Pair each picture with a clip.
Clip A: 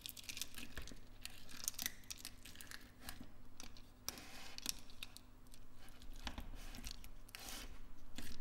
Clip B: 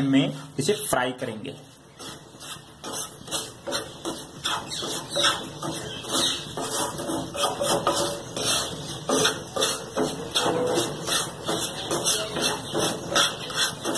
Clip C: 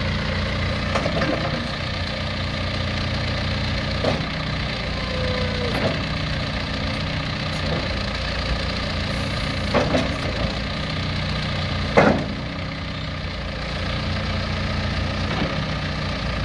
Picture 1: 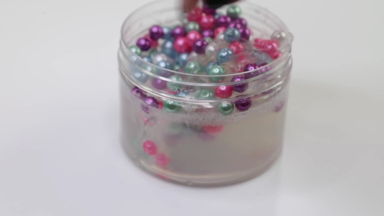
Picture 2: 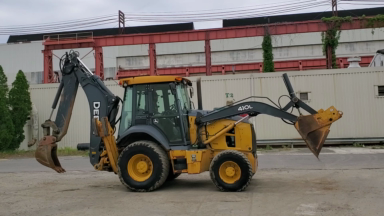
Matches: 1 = A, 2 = C